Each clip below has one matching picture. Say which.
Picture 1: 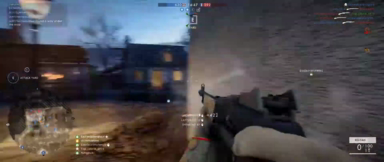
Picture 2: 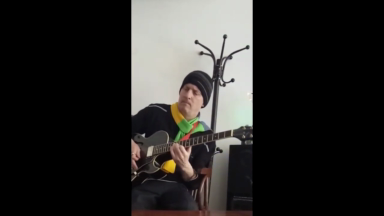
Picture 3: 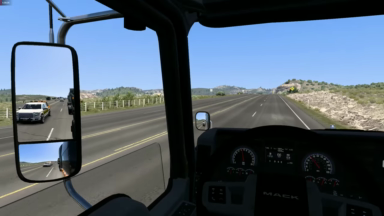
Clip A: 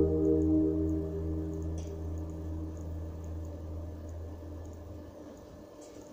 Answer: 2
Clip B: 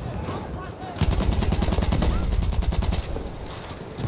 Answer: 1